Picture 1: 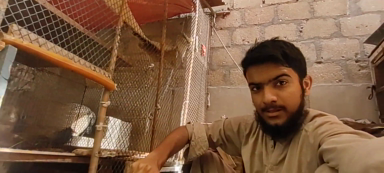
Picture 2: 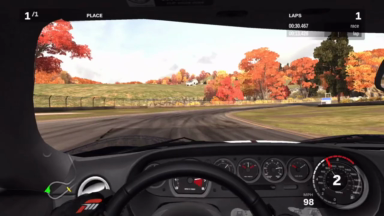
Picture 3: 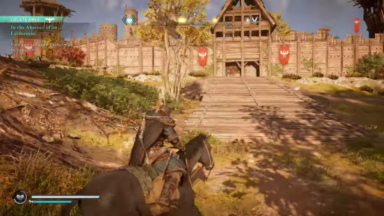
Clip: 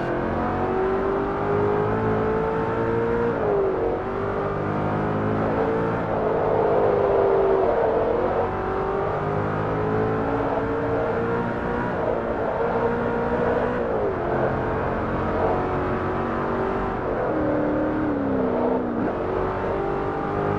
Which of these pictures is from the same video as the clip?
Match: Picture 2